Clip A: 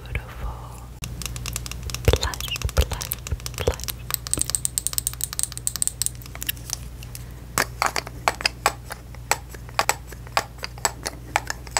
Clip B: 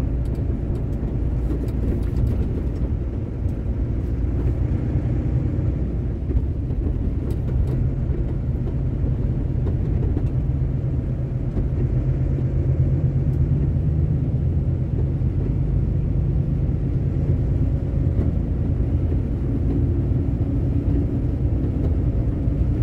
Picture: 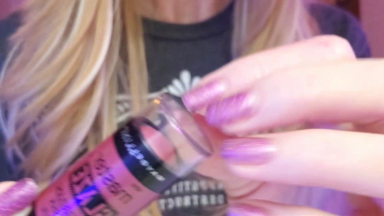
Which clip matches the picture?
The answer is A